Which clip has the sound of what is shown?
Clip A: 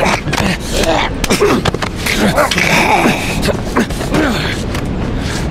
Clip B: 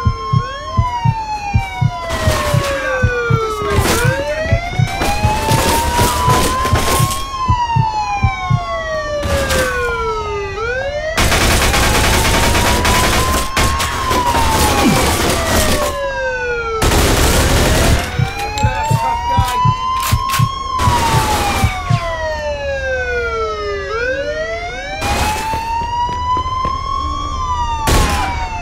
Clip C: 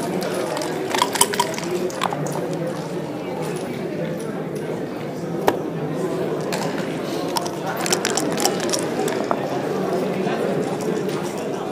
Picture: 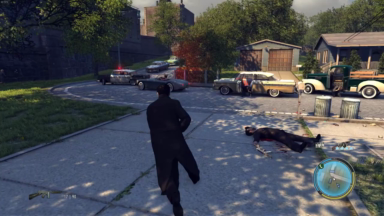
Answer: B